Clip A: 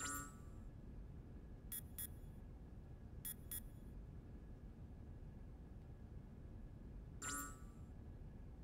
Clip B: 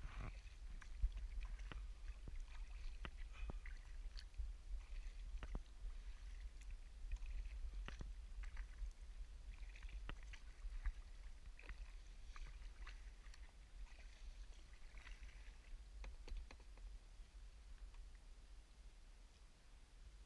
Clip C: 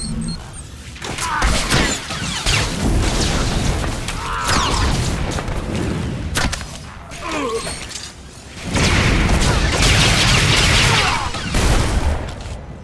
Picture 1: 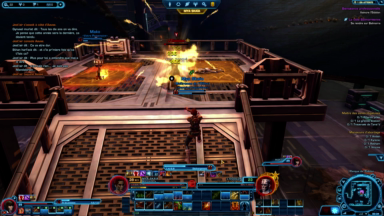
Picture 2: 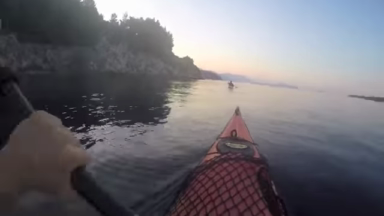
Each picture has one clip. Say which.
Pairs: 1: C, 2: B